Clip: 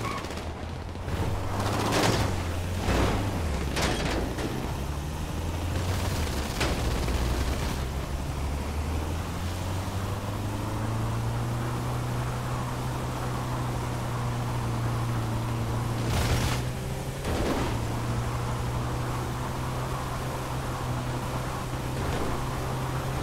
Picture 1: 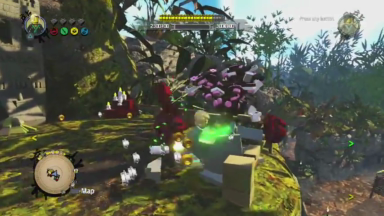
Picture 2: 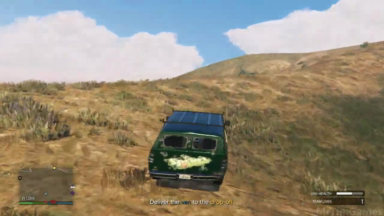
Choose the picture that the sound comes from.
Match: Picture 2